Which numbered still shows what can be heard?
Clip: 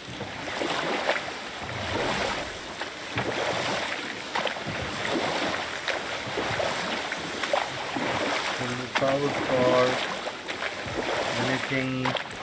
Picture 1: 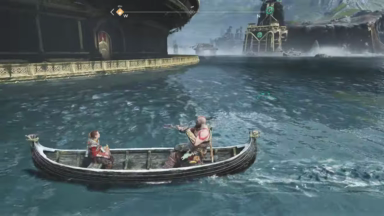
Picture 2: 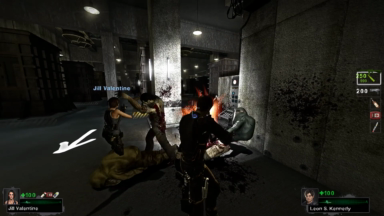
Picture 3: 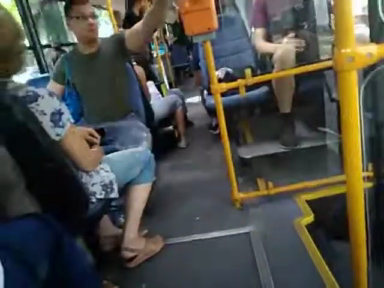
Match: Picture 1